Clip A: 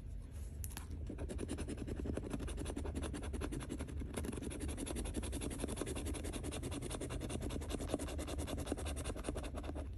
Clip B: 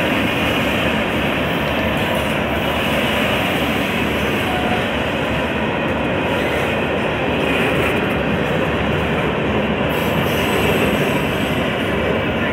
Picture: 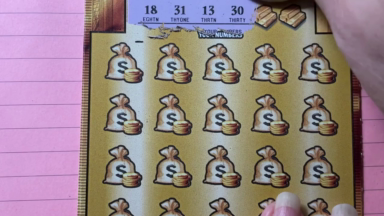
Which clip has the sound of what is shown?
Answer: A